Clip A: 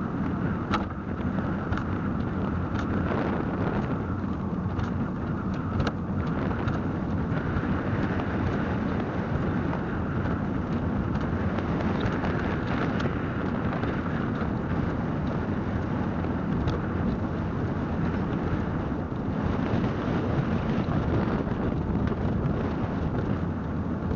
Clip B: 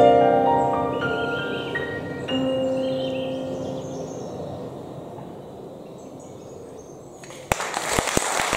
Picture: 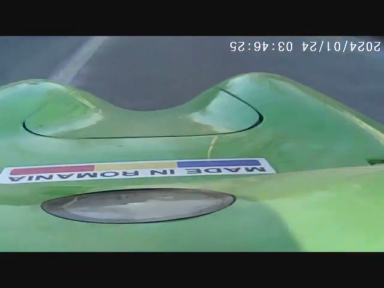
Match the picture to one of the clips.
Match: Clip A